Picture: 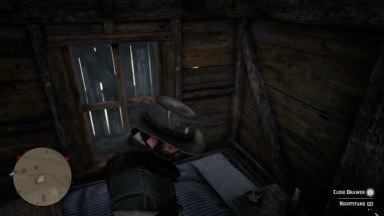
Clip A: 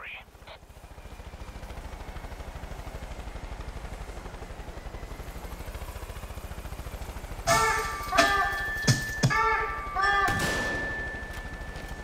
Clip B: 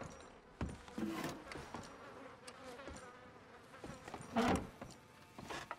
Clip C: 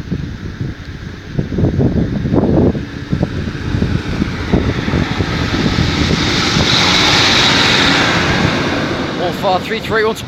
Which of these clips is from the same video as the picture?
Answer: B